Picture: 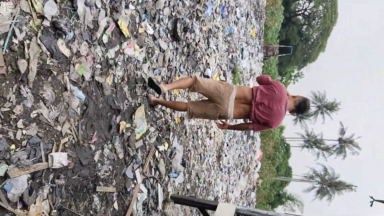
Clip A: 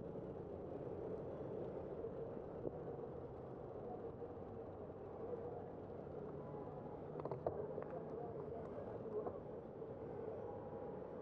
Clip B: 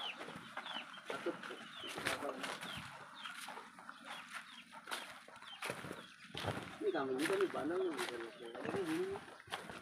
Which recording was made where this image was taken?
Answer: B